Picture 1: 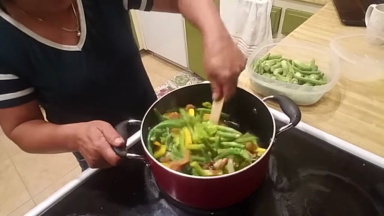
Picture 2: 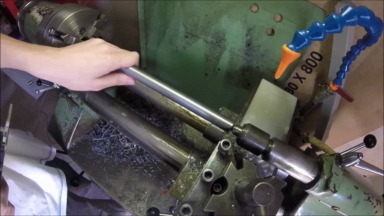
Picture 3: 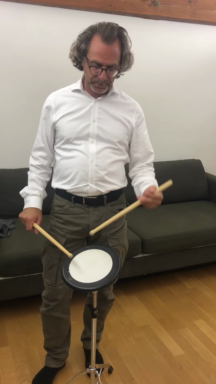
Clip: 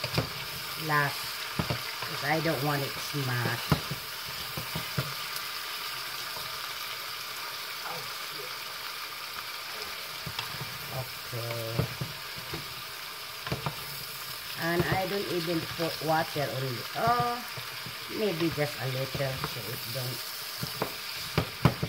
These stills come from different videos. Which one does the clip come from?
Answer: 1